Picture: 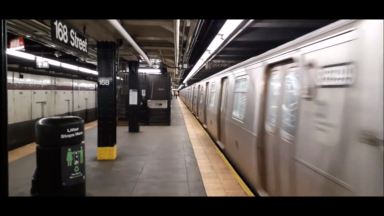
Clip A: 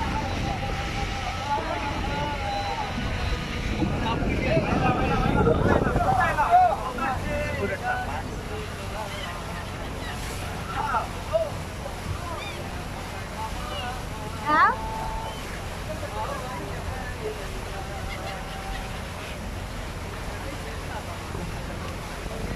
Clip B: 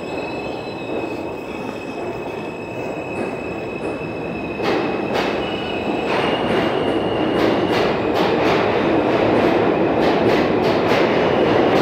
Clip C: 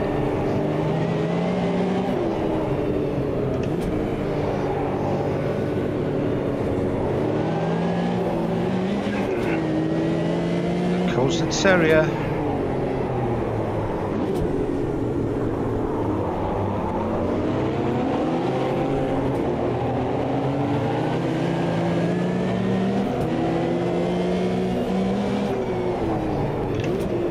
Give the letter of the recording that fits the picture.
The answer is B